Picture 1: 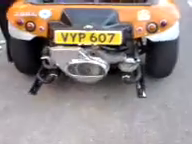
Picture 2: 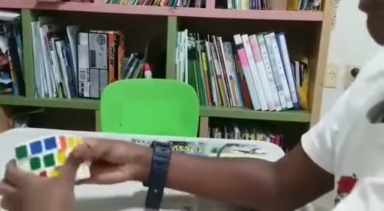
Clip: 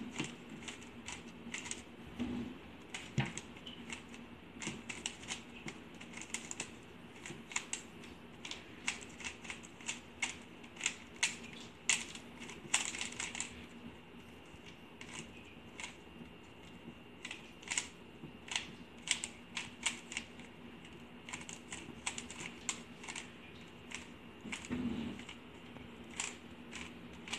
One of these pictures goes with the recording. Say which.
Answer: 2